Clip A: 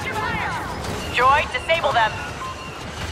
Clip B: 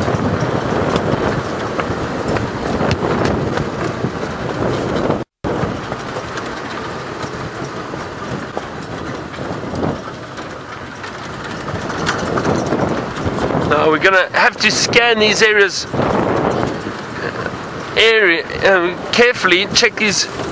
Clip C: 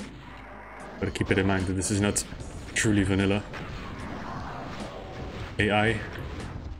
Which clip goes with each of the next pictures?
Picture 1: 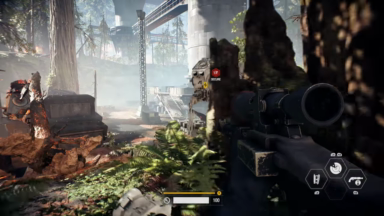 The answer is A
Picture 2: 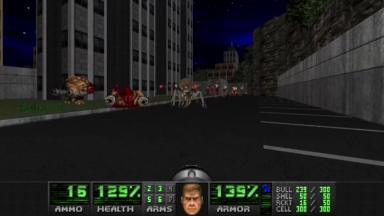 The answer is C